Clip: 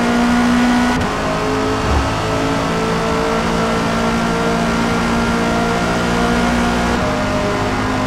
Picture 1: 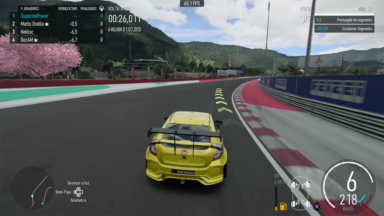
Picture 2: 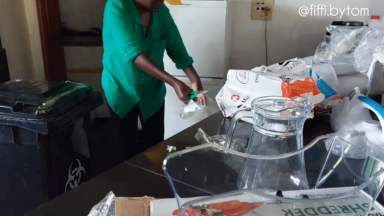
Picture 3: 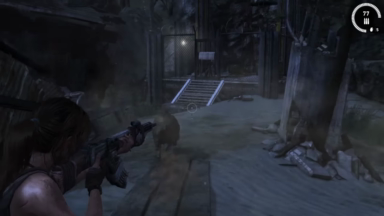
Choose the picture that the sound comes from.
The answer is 1